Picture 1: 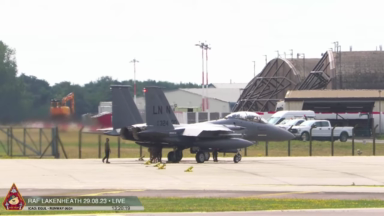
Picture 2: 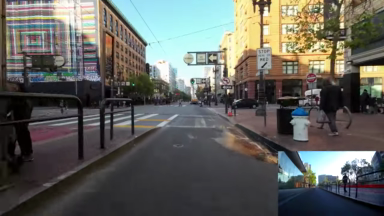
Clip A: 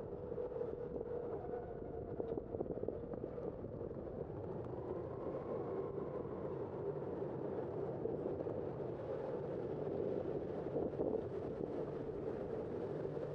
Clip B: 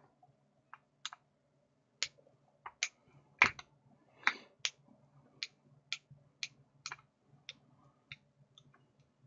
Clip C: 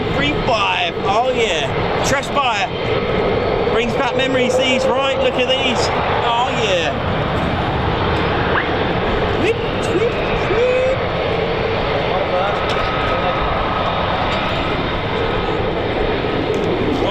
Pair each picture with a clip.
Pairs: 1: C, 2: A